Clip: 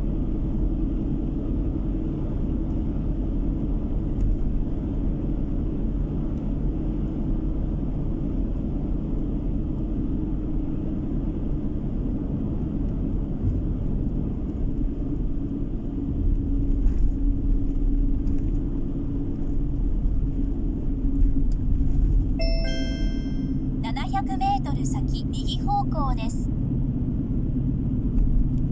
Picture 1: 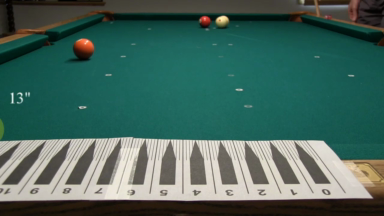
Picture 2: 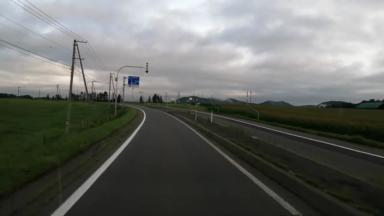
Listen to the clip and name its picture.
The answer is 2